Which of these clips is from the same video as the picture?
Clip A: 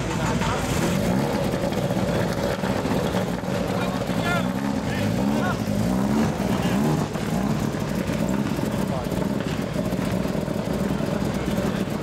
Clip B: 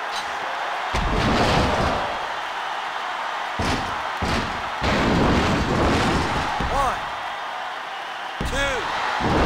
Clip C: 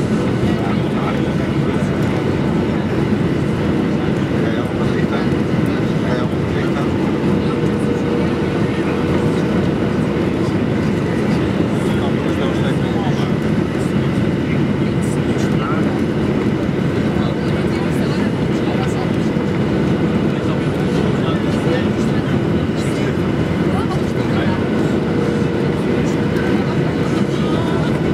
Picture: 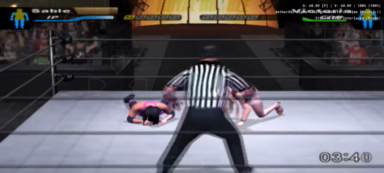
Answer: B